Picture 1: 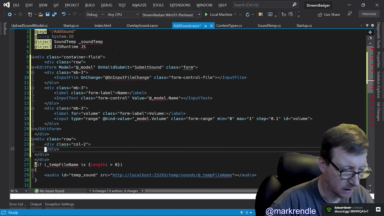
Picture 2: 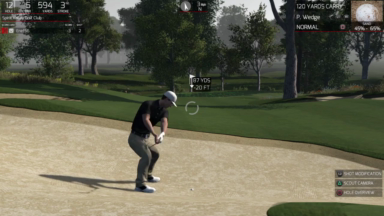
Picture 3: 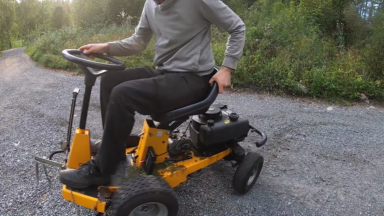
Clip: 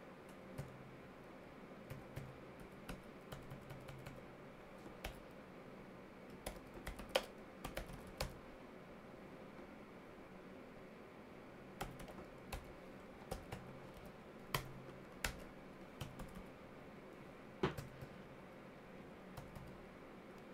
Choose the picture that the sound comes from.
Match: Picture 1